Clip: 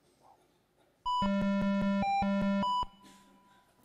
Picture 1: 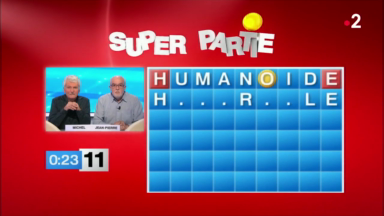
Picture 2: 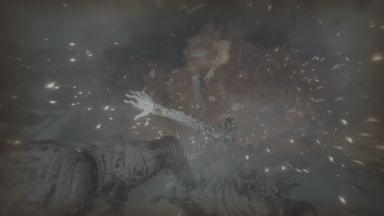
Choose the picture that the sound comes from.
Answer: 1